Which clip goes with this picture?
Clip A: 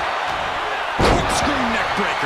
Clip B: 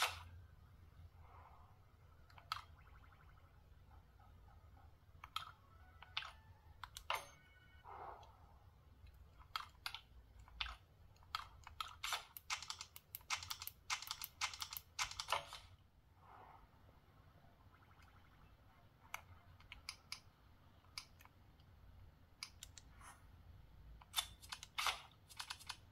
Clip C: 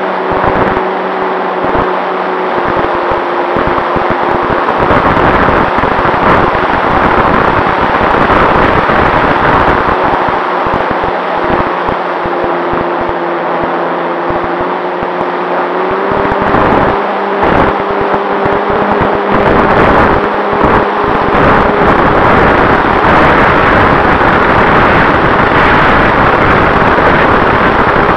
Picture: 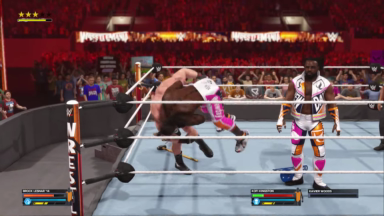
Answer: A